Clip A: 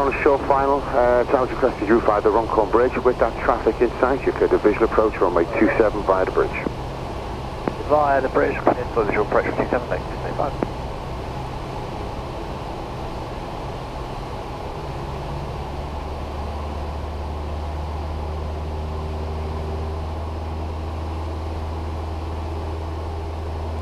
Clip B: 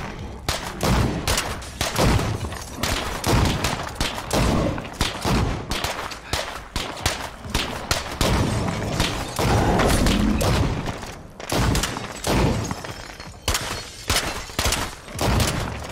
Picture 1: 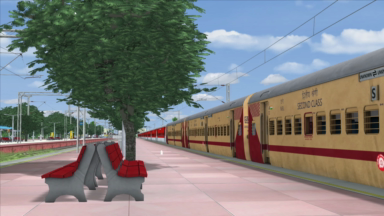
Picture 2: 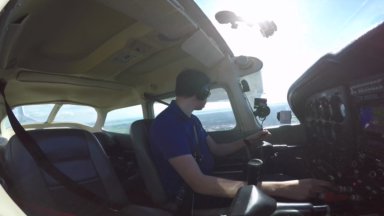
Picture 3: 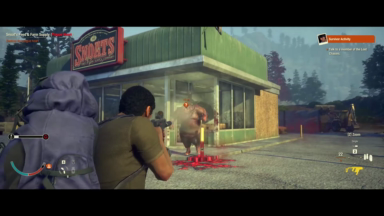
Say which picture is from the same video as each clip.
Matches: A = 2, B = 3